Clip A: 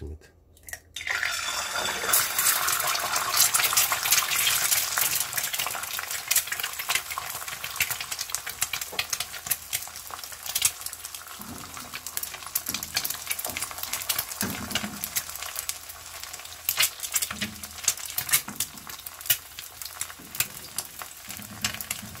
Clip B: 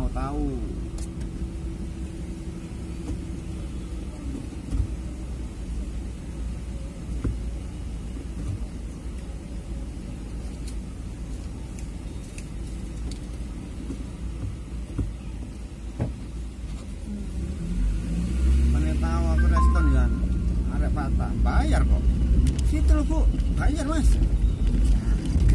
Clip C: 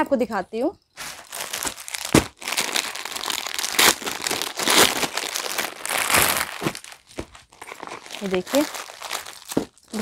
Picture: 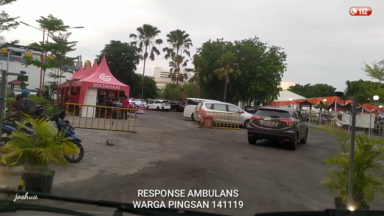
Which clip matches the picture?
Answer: B